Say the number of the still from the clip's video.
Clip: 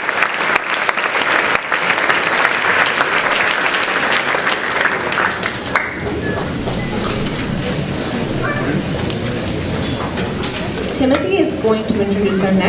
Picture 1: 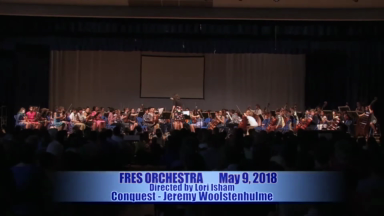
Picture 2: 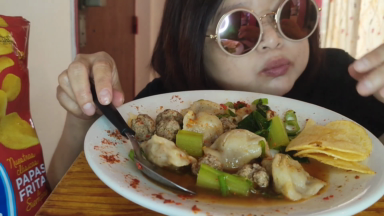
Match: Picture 1